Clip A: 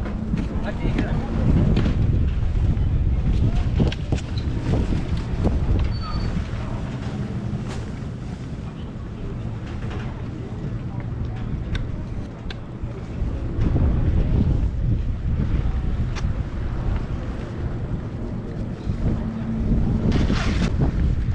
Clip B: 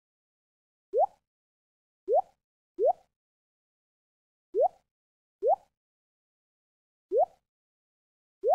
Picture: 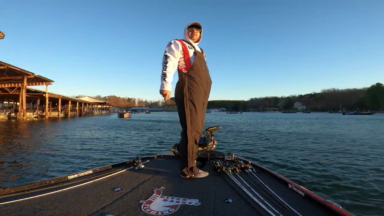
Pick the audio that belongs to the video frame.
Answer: A